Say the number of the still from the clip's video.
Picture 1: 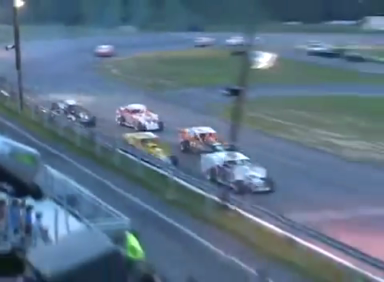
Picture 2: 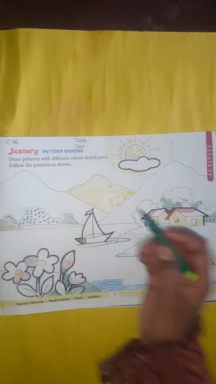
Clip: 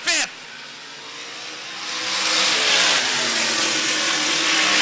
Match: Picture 1